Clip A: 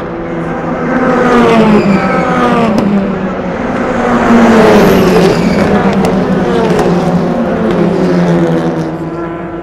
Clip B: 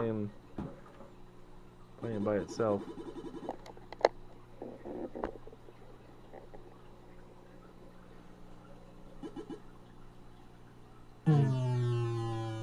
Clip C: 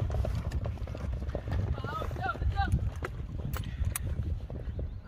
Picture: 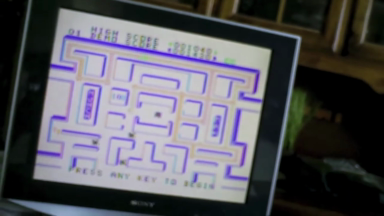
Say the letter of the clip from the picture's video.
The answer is B